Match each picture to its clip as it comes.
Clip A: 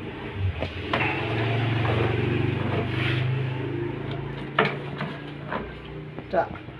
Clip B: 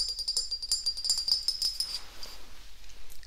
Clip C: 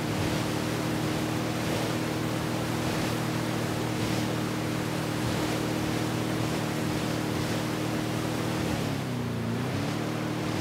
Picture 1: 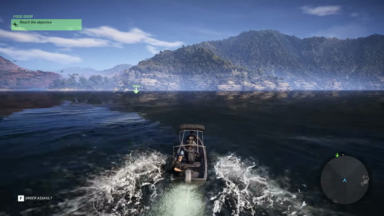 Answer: C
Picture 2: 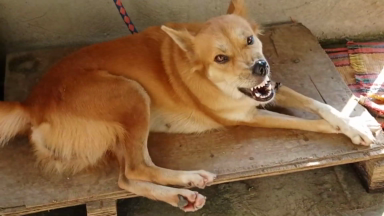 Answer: A